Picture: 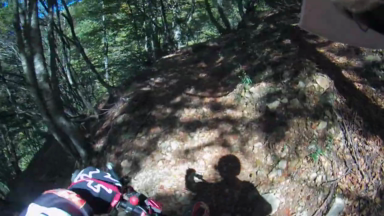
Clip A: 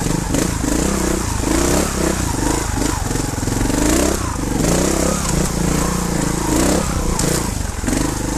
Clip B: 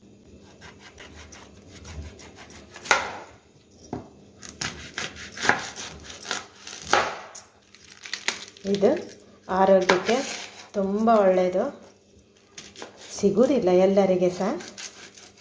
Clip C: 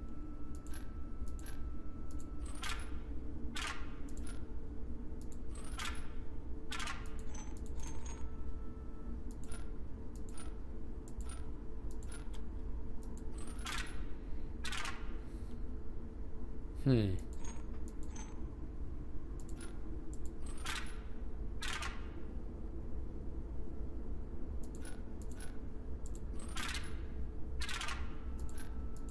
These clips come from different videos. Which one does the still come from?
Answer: A